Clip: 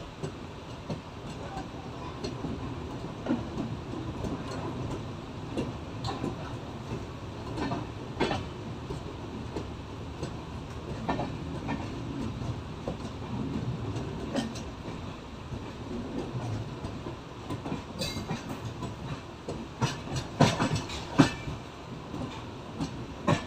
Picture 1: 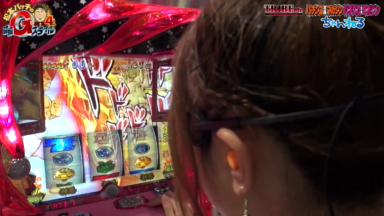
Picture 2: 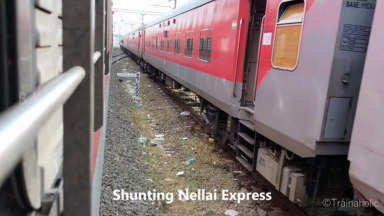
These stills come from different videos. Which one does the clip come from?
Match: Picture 2